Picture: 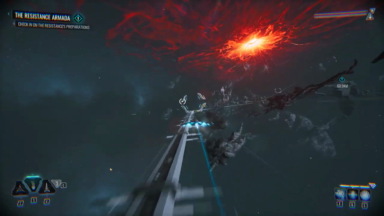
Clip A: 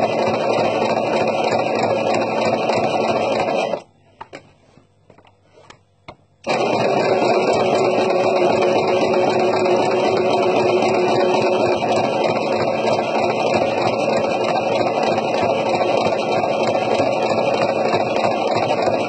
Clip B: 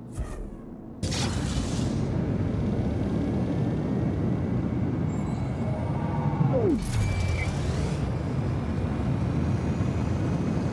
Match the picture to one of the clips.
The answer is B